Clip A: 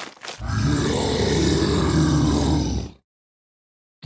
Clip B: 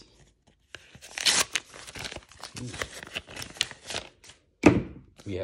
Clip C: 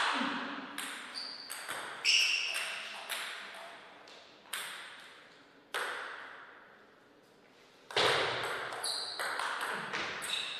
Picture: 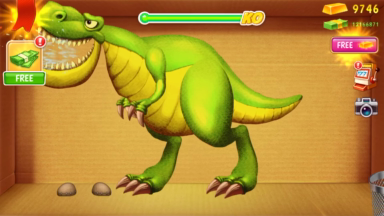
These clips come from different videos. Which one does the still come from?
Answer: A